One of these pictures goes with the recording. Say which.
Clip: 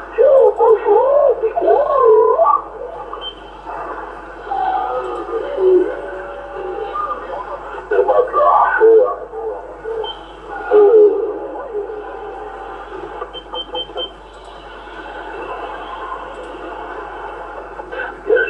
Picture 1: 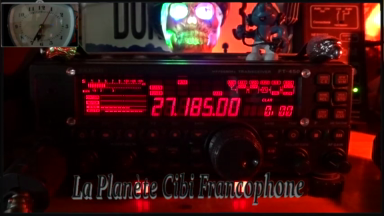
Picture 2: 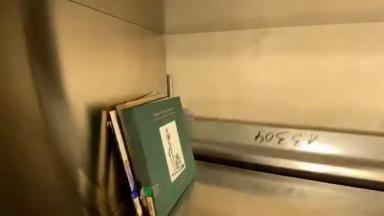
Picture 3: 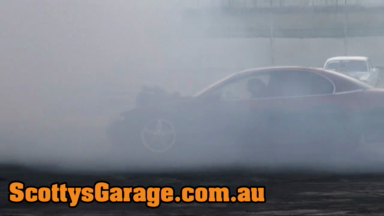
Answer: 1